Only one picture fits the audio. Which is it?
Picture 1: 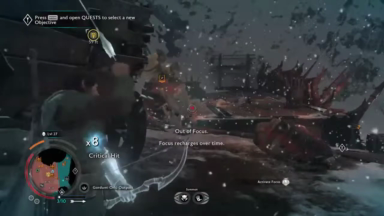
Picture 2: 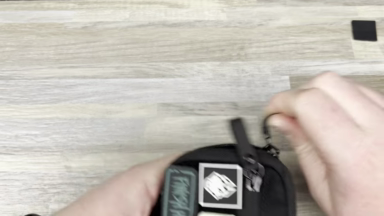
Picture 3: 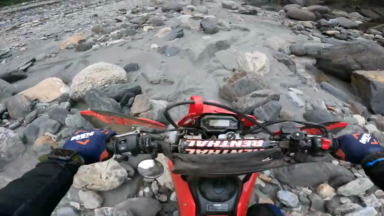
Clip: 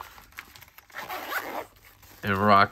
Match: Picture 2